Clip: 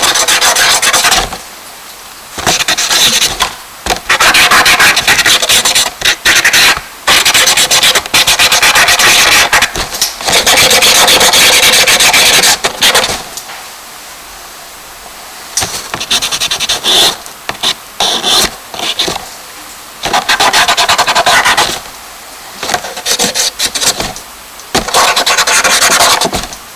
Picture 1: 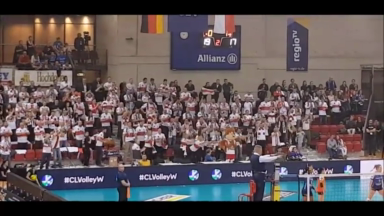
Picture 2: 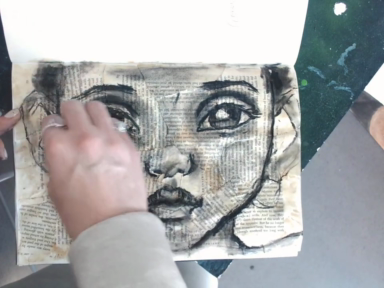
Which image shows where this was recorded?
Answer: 2